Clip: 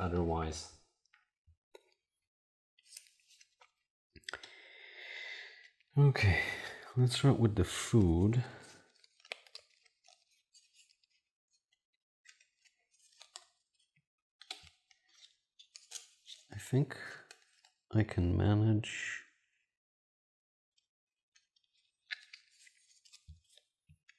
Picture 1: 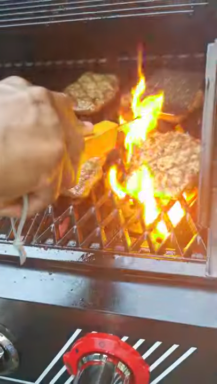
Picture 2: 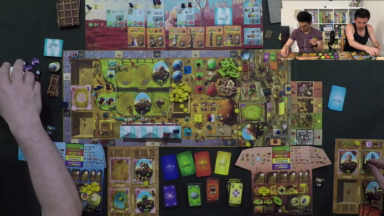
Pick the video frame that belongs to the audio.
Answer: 2